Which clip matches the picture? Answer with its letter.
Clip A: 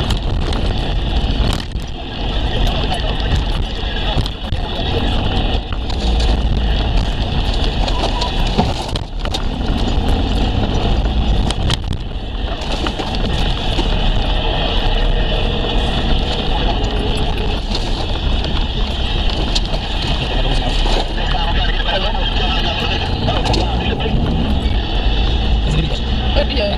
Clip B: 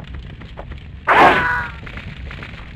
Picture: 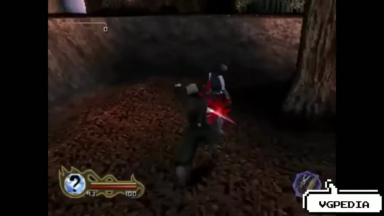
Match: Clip B